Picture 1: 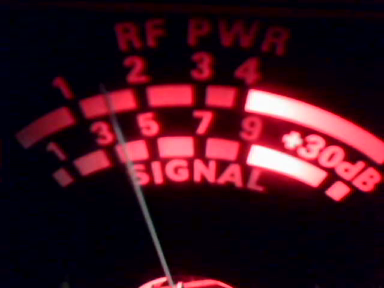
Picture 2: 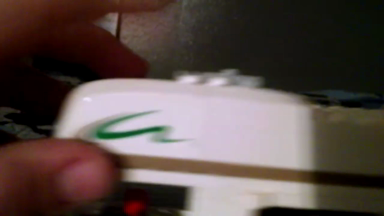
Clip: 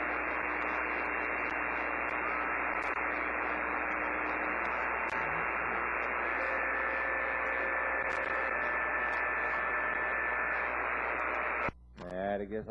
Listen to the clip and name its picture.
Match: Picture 1